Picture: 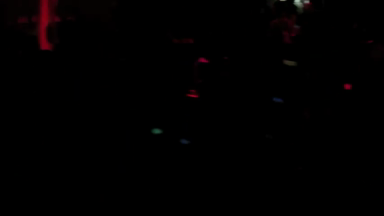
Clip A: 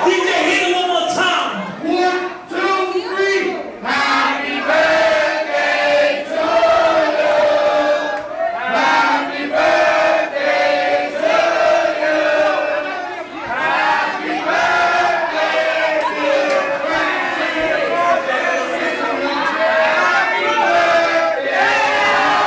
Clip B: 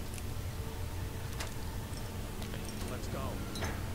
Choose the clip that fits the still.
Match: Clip A